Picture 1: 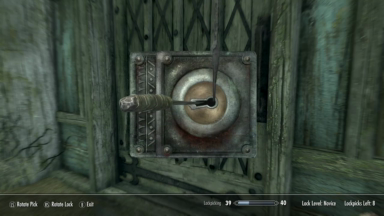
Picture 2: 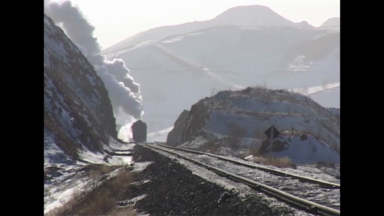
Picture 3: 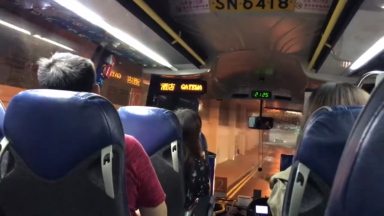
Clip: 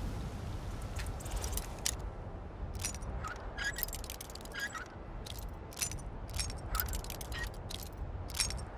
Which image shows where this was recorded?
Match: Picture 1